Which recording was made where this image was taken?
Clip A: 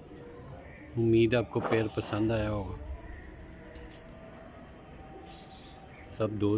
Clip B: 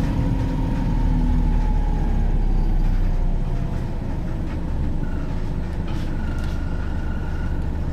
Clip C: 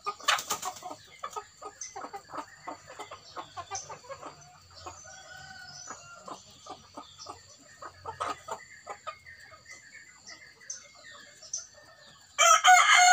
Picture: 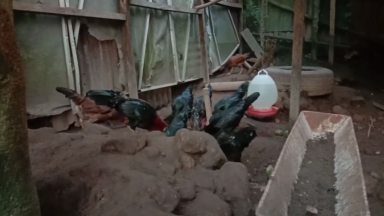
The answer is C